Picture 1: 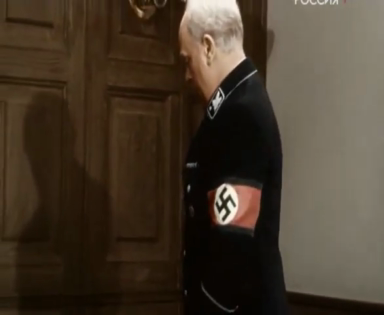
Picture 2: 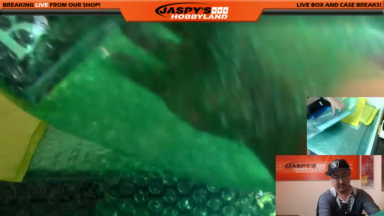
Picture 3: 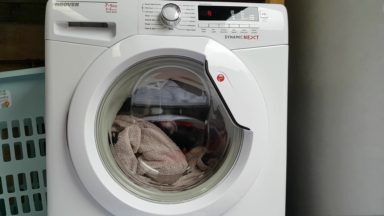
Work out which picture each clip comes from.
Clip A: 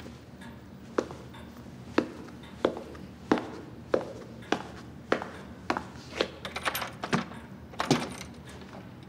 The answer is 1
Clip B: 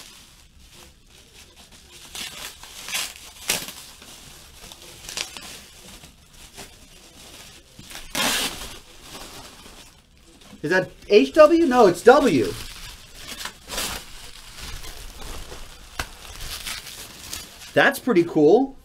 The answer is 2